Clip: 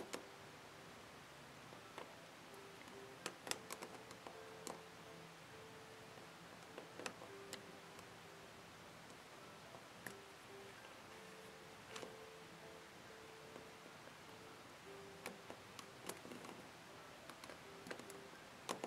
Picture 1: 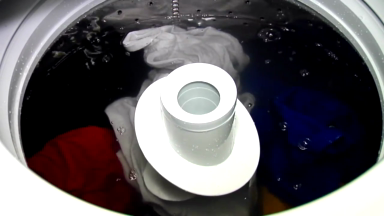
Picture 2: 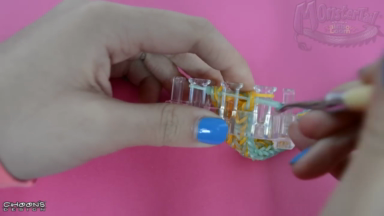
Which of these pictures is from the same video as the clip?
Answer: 2